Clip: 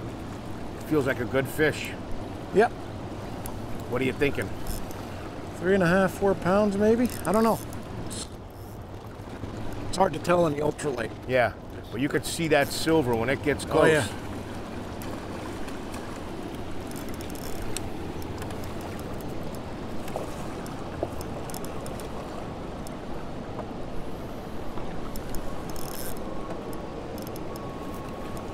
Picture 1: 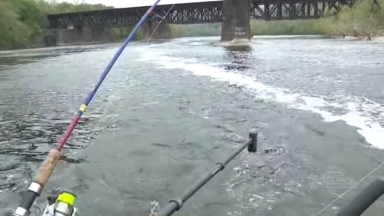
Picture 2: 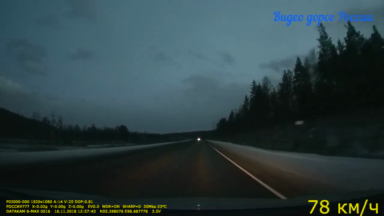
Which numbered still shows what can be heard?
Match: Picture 1